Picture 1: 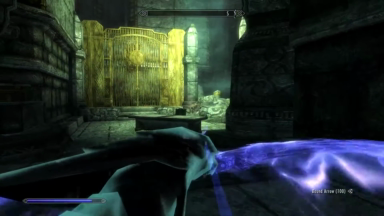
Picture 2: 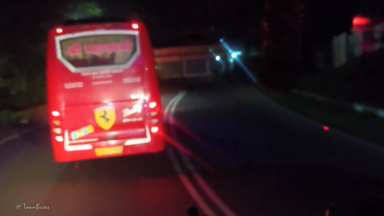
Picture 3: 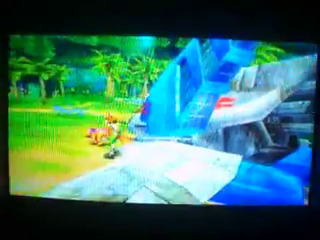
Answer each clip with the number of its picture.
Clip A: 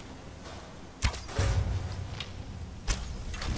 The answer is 1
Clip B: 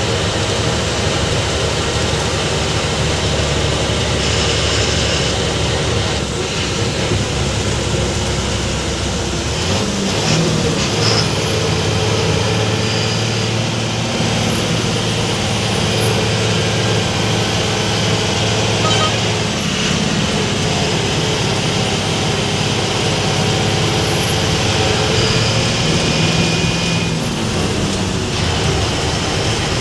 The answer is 2